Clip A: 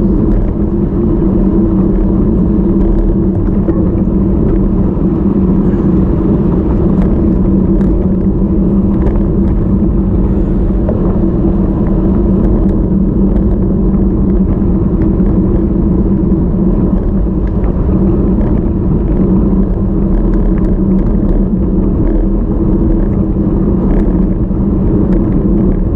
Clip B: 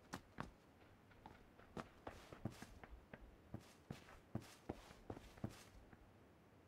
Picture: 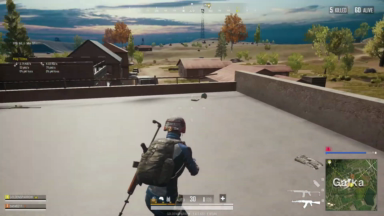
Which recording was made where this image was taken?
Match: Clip B